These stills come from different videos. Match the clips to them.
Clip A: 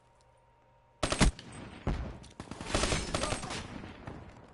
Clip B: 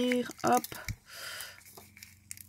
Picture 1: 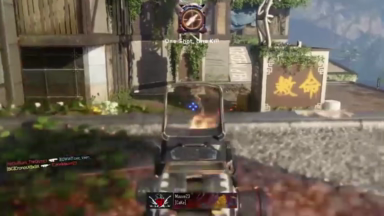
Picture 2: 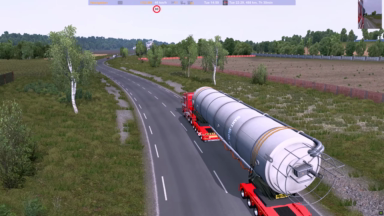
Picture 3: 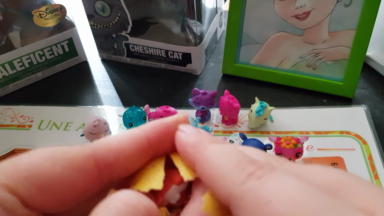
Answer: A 1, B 3